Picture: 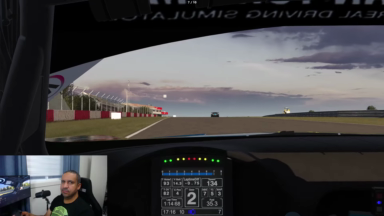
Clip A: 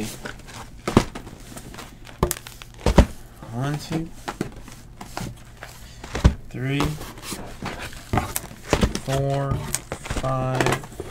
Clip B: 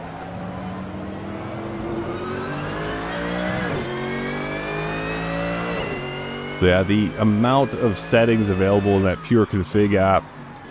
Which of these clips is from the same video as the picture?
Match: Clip B